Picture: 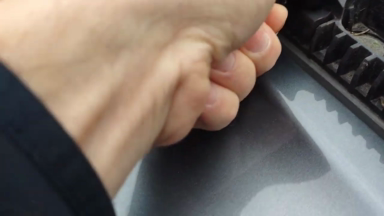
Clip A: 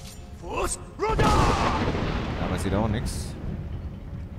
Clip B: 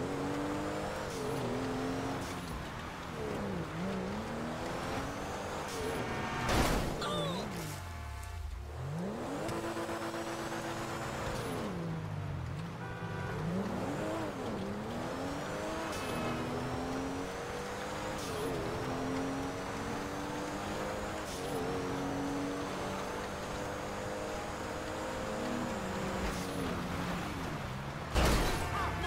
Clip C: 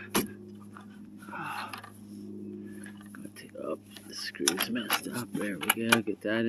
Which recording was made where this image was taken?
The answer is C